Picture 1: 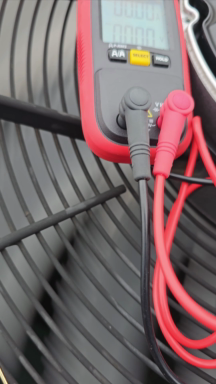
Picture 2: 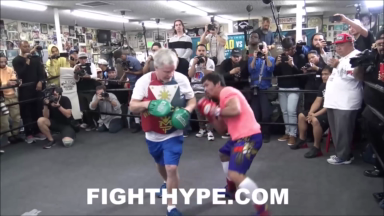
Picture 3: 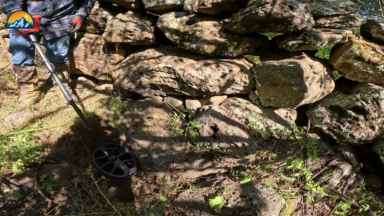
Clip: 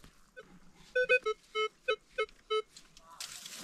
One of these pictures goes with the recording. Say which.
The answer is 3